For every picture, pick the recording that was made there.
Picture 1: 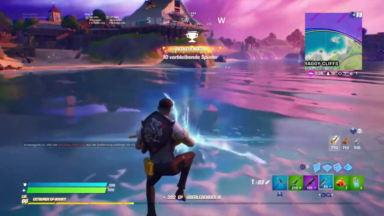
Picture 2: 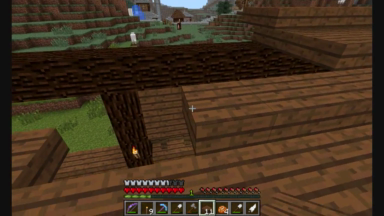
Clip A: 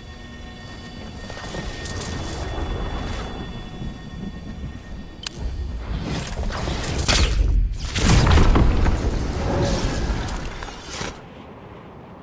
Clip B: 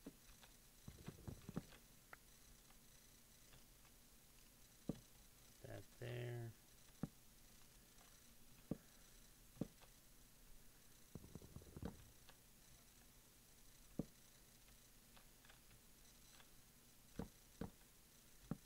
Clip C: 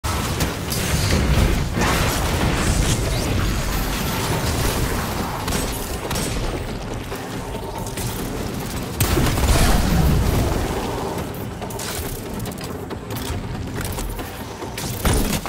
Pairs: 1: A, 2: B